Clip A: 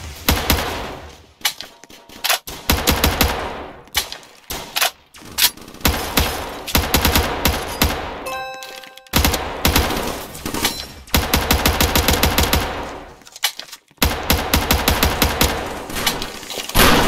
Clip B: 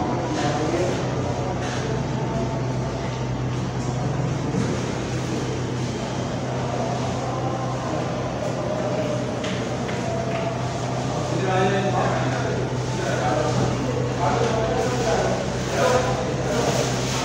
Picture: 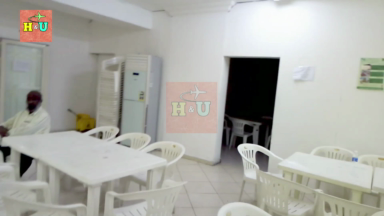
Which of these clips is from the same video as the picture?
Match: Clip B